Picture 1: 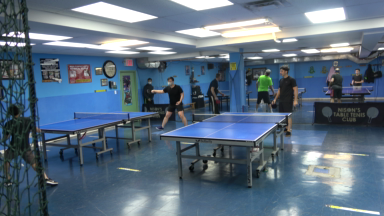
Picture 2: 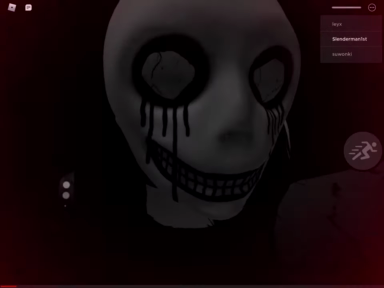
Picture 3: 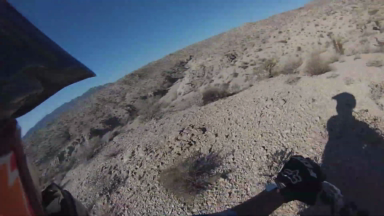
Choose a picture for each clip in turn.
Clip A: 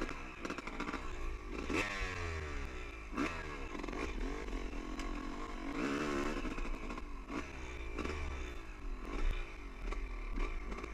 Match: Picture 3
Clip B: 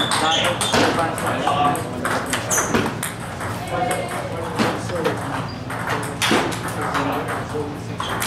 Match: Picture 1